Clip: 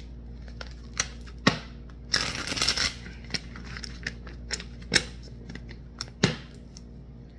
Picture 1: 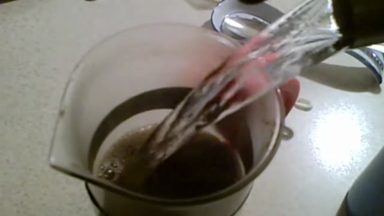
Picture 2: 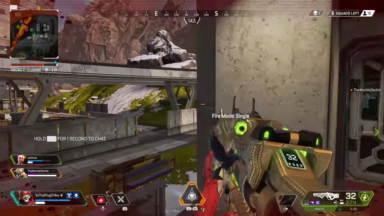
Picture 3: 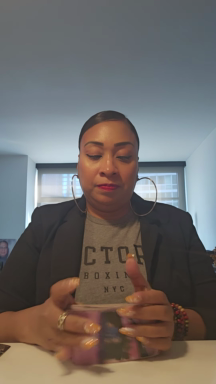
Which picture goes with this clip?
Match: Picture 3